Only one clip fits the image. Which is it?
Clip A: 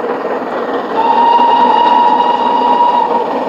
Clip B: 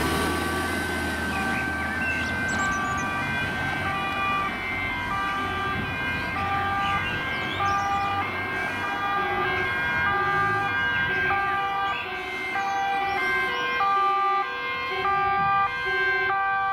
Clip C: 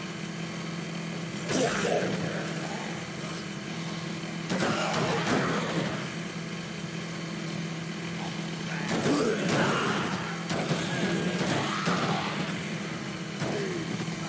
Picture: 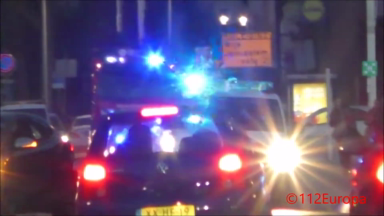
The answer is B